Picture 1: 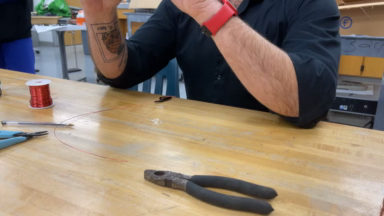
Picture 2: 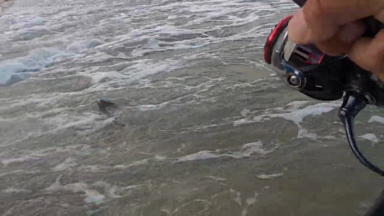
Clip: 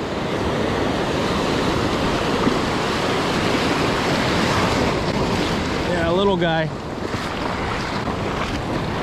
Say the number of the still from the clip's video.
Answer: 2